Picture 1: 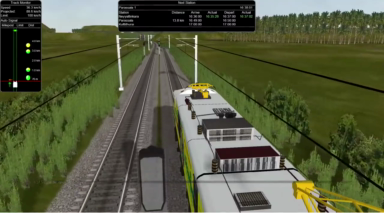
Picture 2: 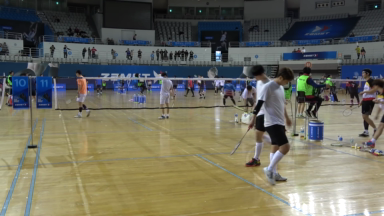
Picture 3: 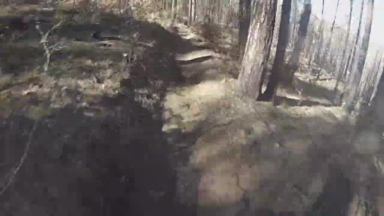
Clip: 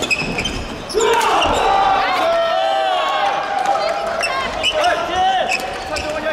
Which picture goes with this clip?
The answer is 2